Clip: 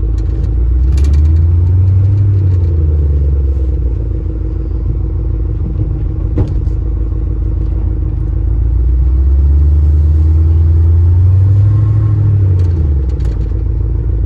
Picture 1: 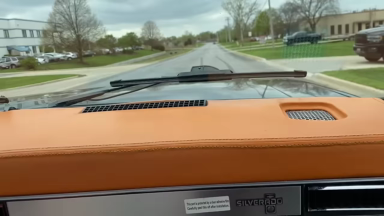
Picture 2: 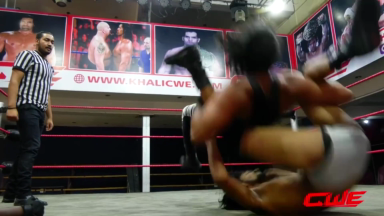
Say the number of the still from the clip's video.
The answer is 1